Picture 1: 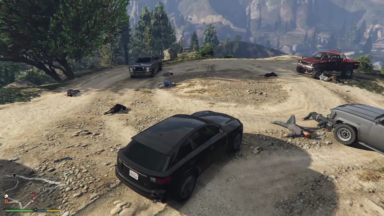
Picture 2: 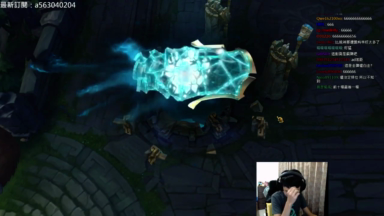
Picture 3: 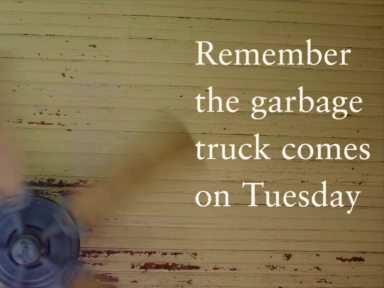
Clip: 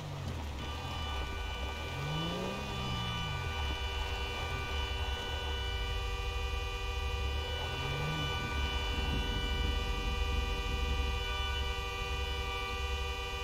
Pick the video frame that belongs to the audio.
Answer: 1